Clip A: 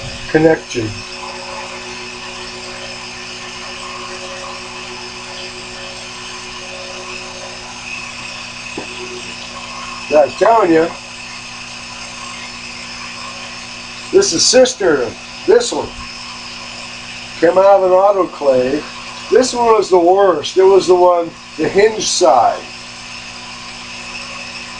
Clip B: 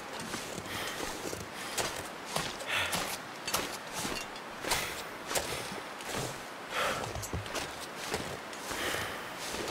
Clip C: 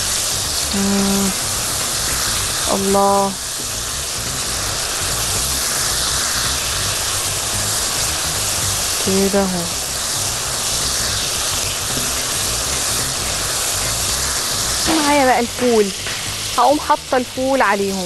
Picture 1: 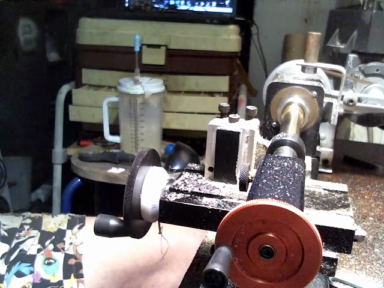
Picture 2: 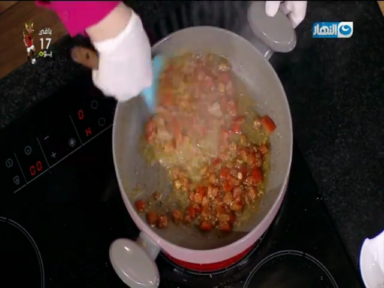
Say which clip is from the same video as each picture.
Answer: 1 A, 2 C